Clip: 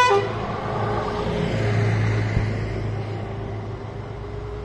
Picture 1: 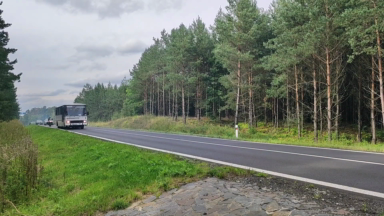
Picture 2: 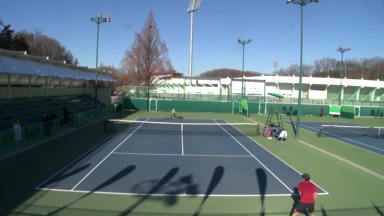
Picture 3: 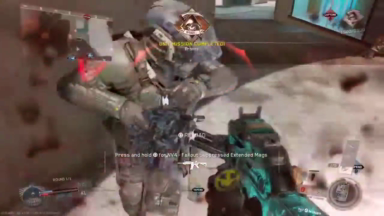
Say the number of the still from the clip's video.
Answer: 1